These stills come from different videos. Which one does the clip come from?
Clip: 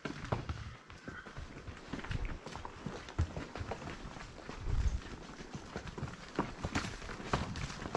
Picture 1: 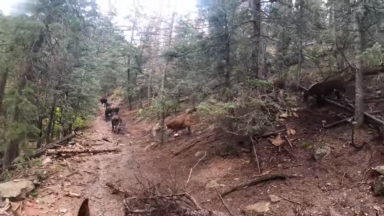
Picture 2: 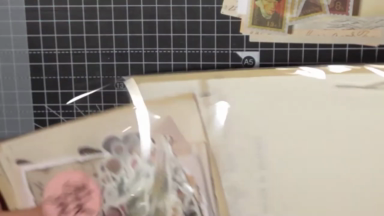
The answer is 1